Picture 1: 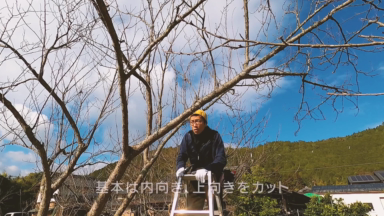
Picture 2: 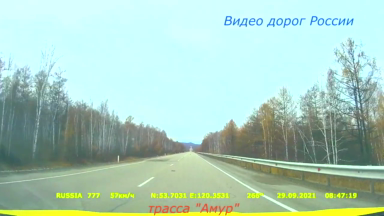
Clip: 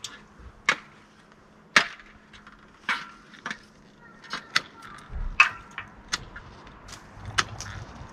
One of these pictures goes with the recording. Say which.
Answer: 1